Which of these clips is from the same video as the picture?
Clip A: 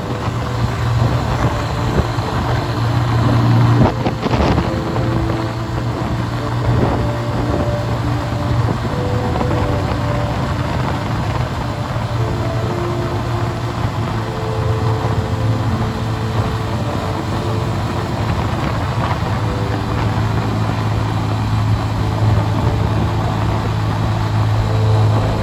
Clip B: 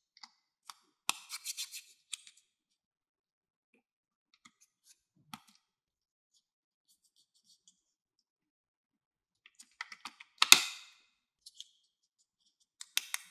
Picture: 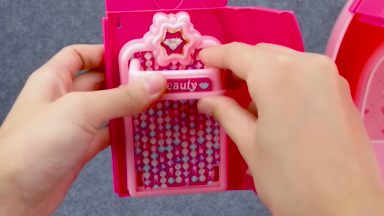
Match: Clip B